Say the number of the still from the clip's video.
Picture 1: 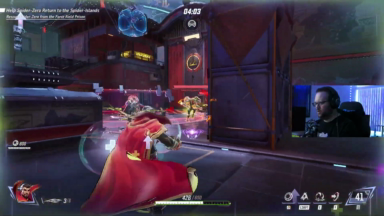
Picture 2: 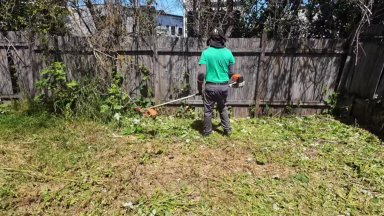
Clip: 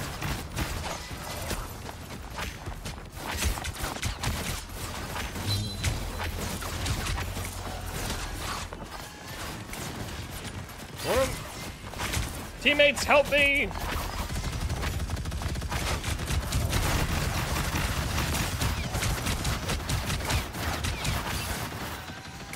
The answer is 1